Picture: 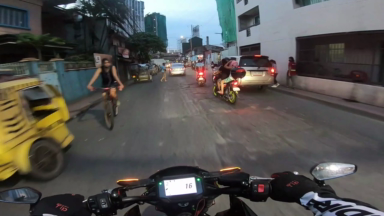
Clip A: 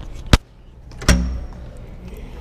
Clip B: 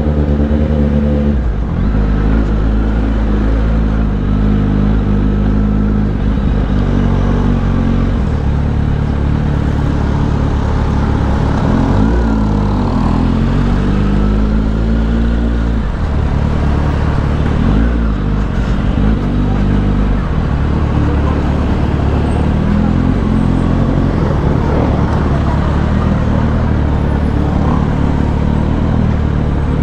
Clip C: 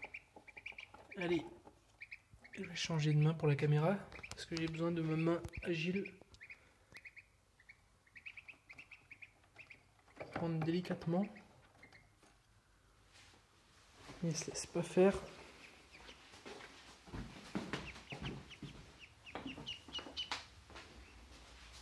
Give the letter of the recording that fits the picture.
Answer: B